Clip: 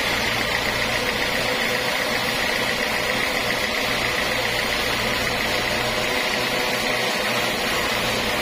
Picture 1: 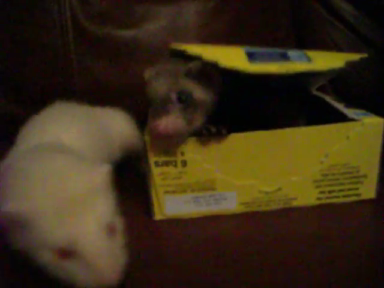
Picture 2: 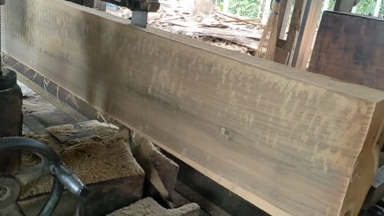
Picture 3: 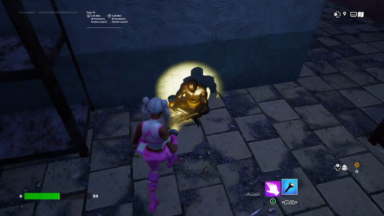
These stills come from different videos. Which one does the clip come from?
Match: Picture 2